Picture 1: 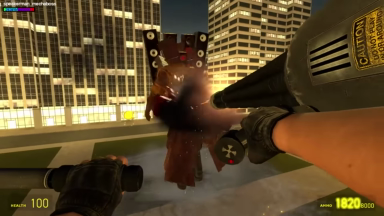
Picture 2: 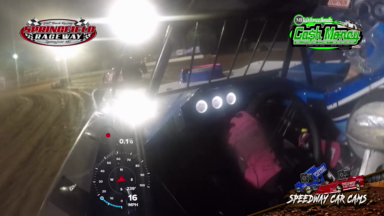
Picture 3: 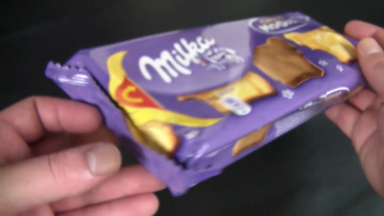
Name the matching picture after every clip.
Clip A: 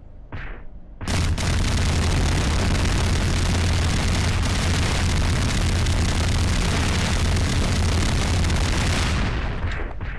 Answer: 1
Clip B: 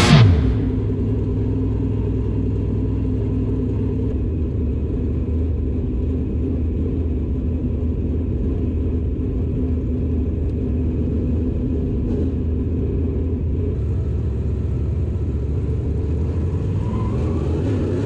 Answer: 2